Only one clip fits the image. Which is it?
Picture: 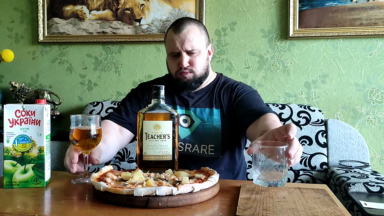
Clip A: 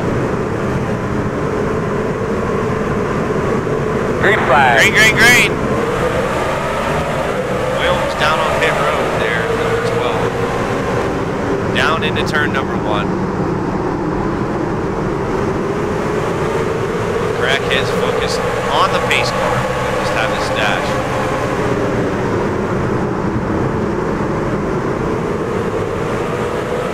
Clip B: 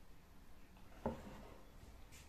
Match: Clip B